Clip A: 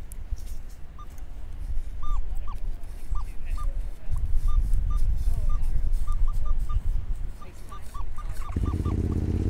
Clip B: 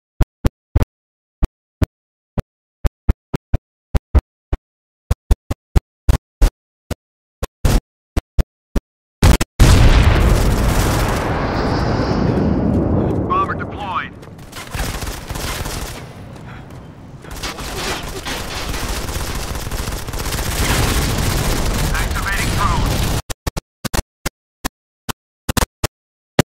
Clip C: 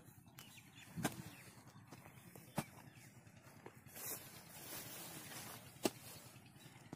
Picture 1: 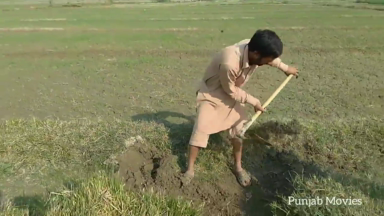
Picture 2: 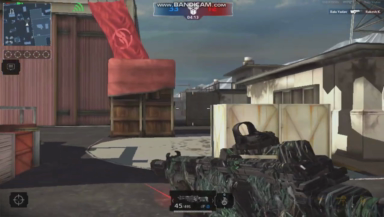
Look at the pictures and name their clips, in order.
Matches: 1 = C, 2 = B